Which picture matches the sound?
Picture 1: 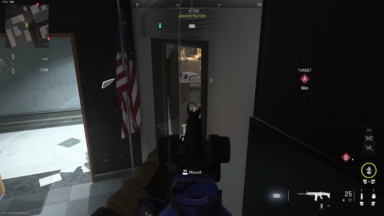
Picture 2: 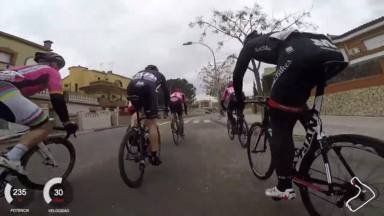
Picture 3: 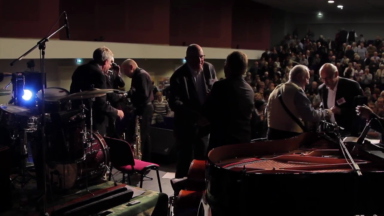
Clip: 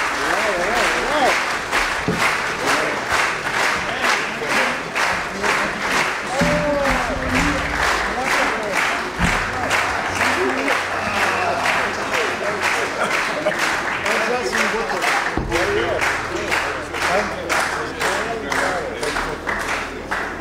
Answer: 3